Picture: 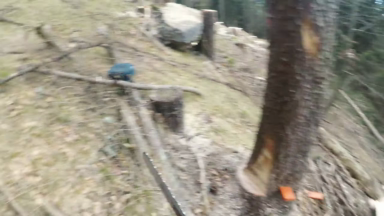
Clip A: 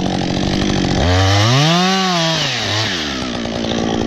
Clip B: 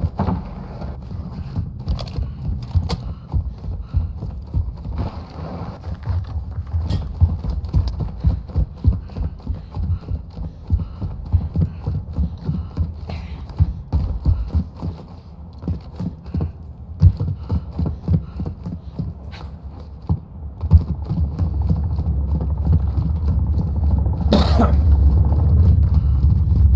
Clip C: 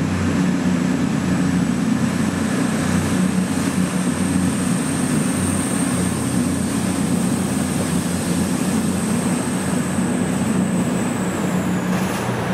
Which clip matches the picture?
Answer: A